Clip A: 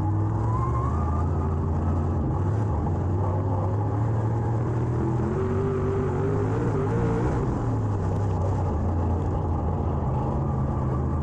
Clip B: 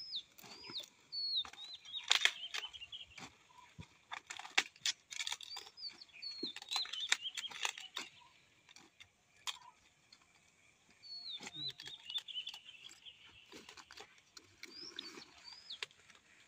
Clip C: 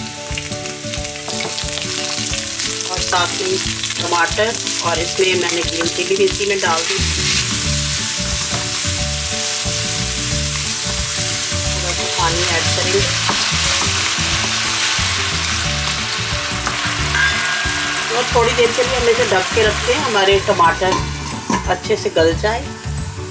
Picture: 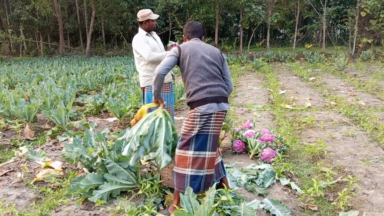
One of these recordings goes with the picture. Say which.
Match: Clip B